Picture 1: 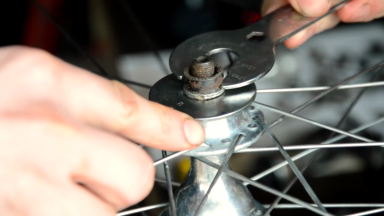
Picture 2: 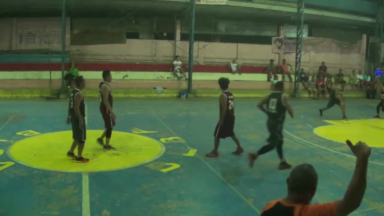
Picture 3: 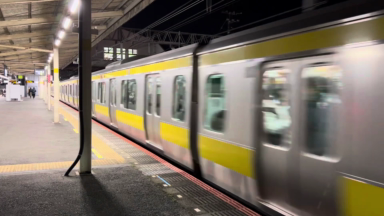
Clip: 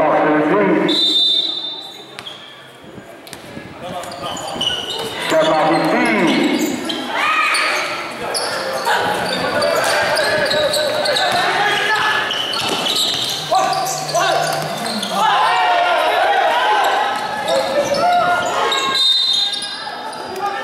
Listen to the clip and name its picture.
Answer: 2